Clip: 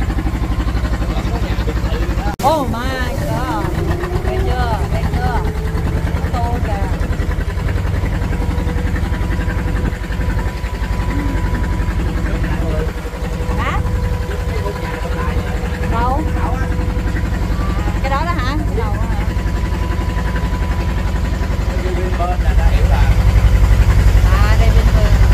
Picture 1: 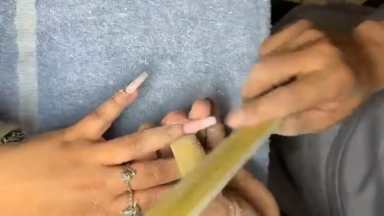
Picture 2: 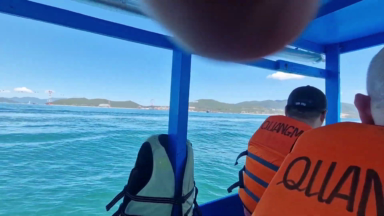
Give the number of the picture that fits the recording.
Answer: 2